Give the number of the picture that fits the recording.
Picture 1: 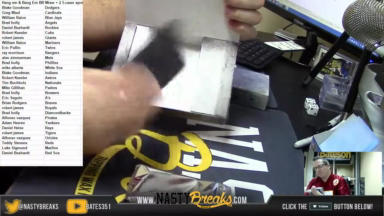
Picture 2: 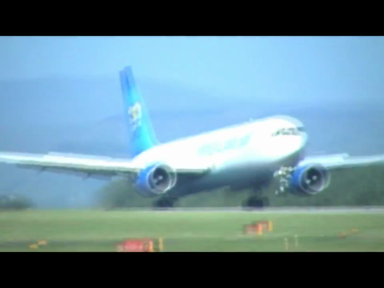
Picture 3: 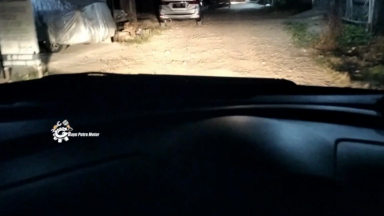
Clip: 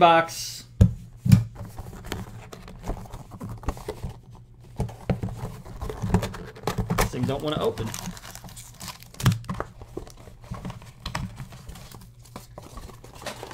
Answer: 1